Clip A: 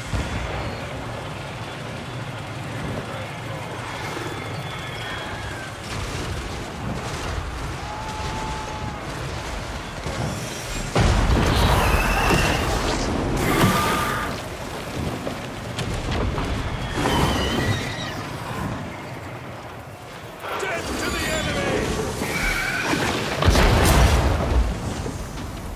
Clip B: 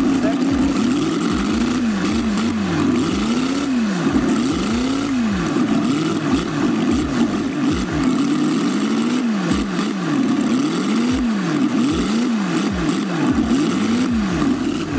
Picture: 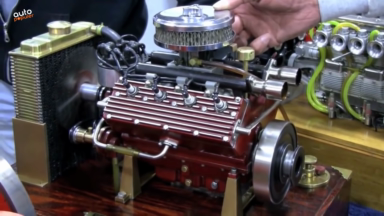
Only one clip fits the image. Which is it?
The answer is B